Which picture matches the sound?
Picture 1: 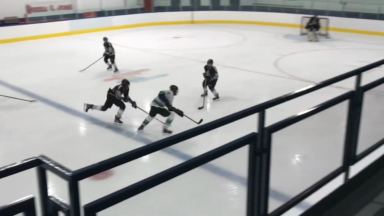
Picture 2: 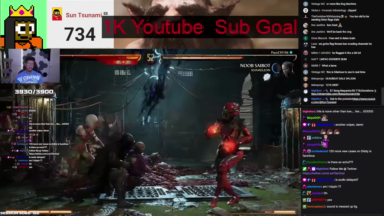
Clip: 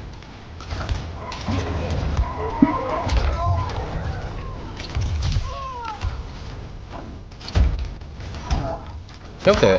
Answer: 2